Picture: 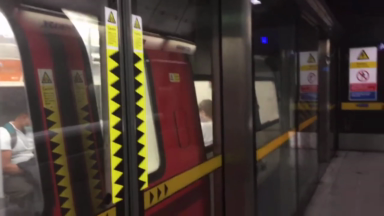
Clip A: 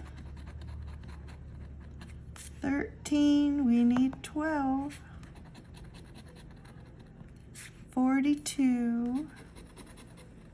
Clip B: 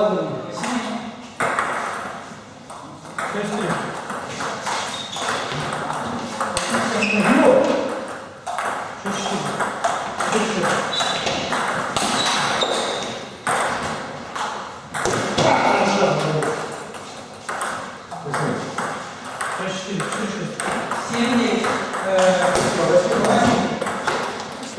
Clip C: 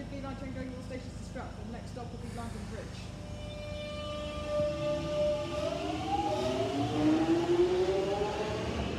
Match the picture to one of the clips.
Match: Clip C